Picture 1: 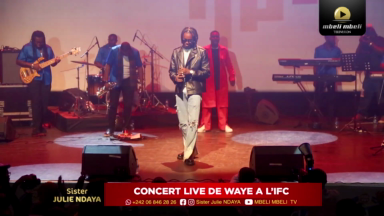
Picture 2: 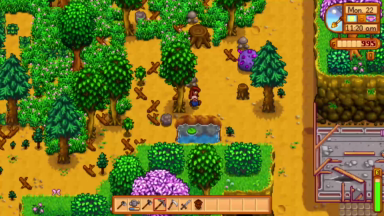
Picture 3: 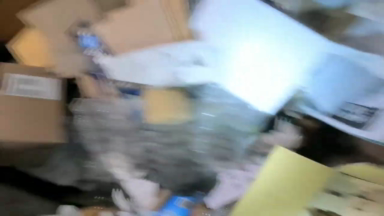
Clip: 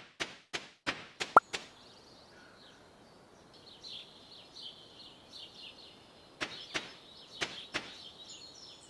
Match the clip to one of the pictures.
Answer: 2